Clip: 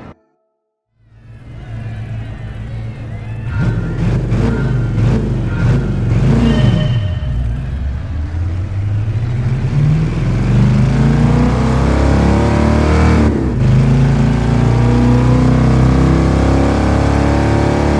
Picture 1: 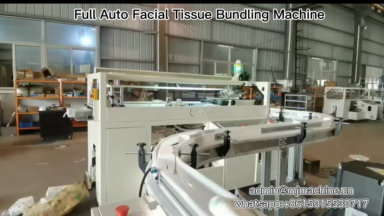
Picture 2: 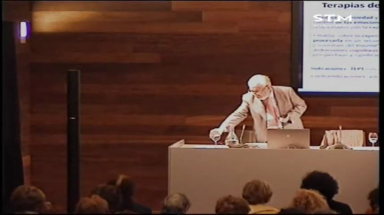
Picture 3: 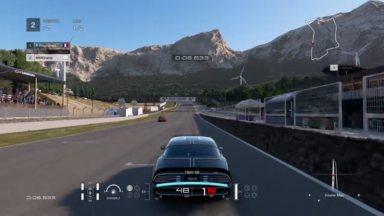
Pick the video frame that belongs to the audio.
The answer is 3